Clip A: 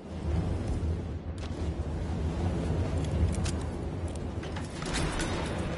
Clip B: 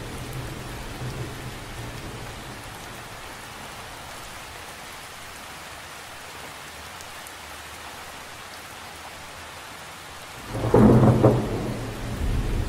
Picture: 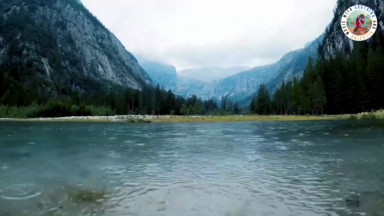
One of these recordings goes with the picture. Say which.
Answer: B